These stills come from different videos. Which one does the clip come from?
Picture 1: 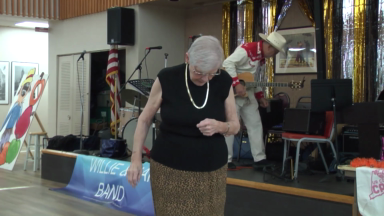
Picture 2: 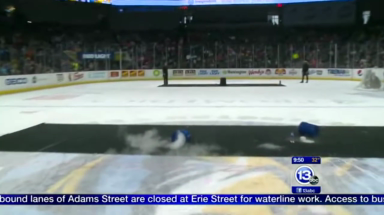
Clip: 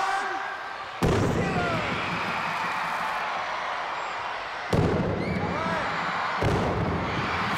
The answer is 2